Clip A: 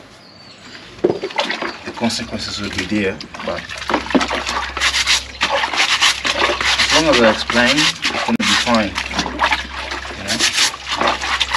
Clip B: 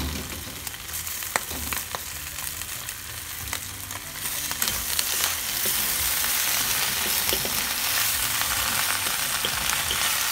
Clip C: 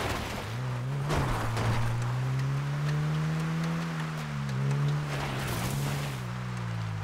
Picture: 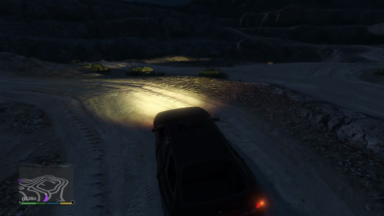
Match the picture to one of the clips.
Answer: C